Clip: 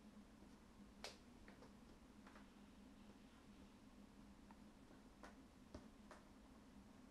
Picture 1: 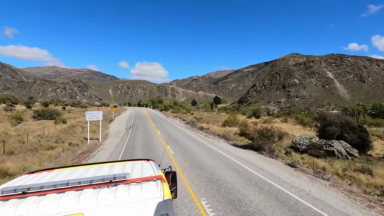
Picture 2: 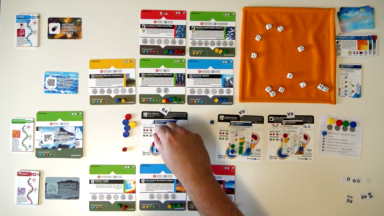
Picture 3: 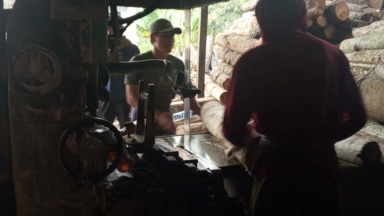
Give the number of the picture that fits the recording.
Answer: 2